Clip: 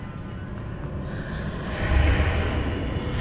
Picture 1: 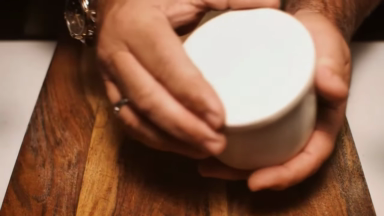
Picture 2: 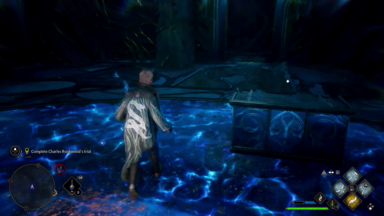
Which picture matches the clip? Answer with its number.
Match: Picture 2